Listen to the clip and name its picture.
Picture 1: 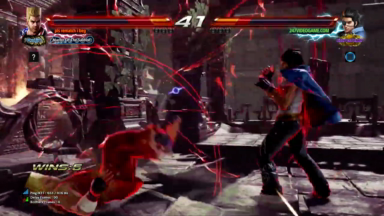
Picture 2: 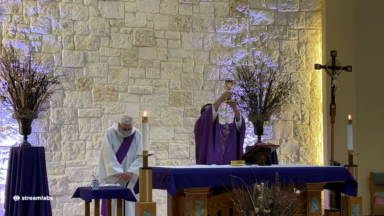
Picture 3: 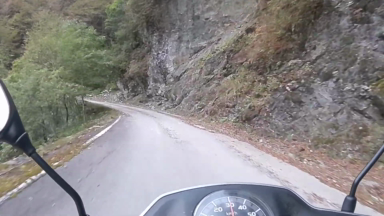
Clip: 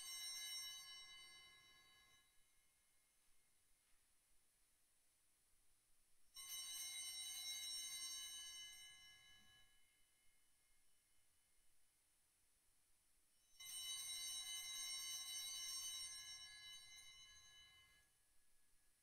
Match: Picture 2